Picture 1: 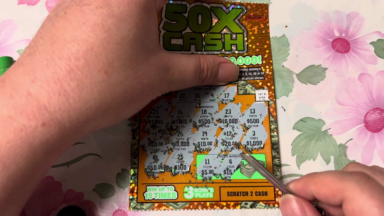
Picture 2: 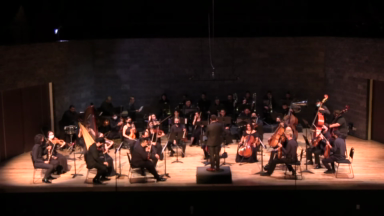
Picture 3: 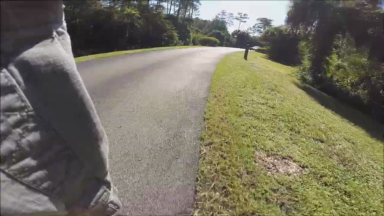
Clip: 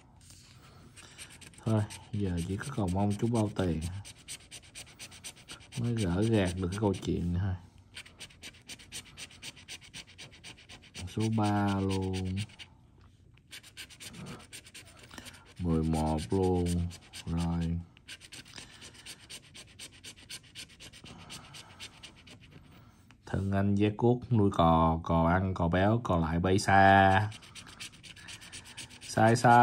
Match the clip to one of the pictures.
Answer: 1